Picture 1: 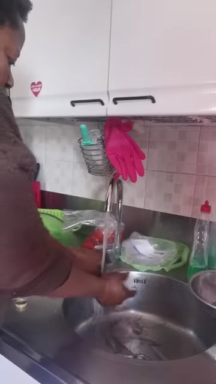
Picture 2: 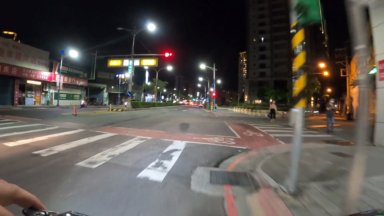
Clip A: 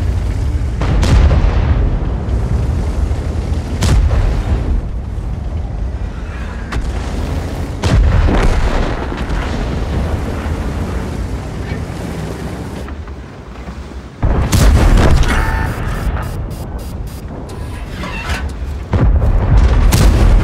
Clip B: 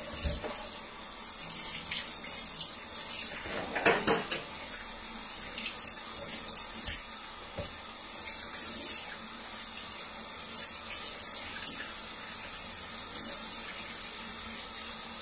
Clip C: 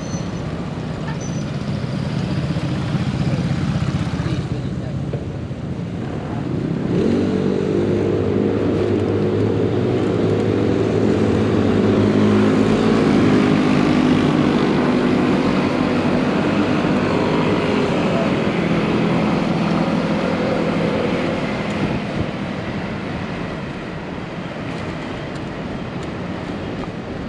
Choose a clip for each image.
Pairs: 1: B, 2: C